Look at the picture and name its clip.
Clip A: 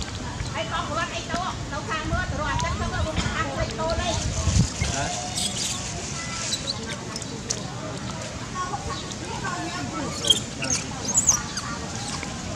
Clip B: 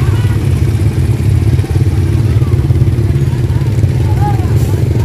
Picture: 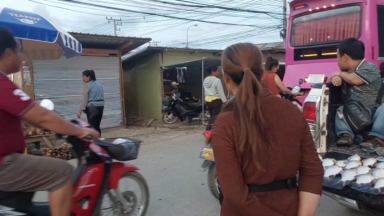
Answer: B